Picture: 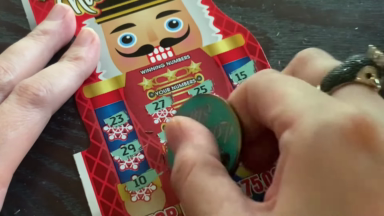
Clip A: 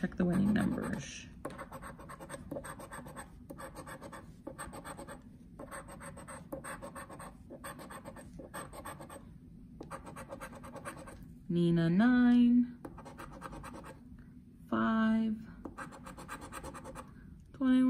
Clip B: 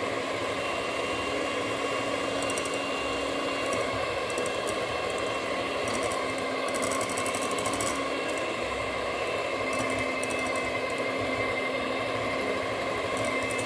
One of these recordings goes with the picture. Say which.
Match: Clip A